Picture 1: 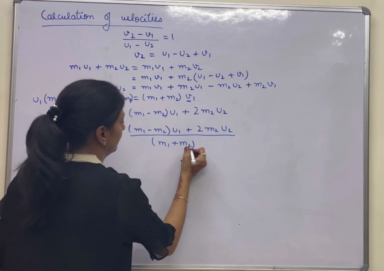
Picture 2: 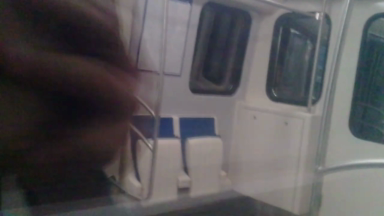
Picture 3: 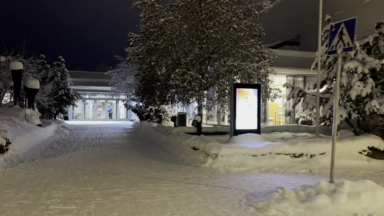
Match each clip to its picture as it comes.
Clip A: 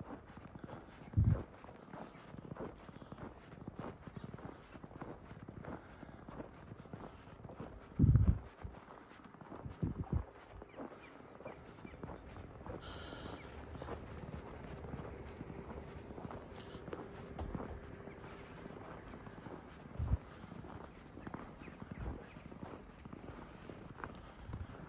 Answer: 3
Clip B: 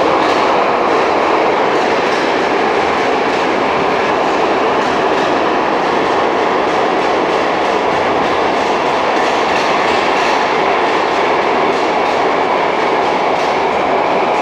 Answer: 2